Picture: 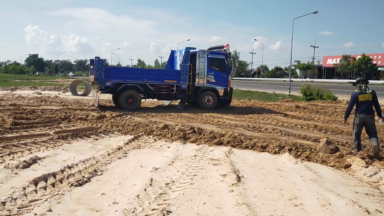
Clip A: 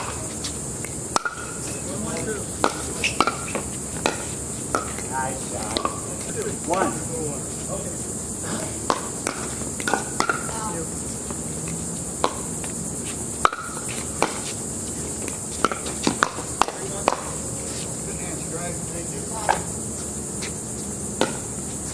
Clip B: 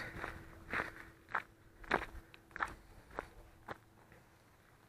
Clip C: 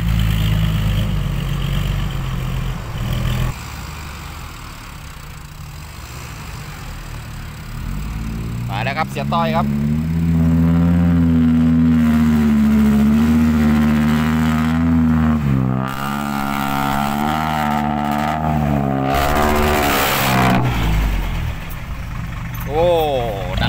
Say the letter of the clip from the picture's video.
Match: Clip C